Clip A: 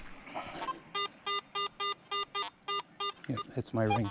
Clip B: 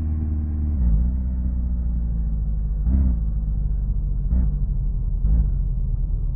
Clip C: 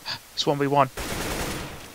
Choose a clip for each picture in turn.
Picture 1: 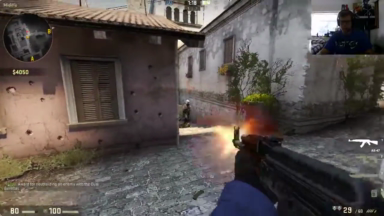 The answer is C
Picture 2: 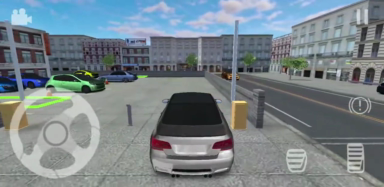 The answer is B